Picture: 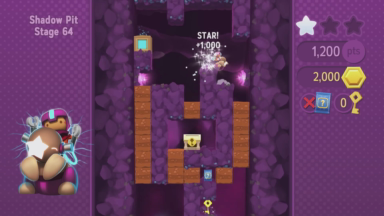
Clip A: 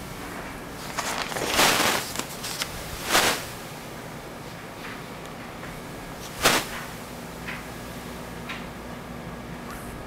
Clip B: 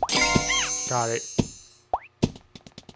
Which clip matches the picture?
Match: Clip B